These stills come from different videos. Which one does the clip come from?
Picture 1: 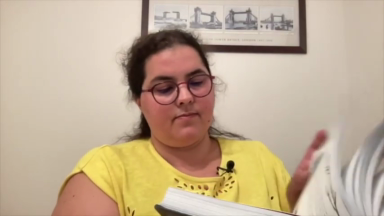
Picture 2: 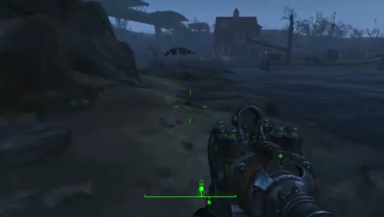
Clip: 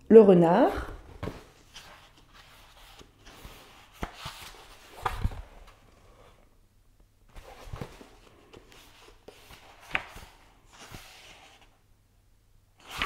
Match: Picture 1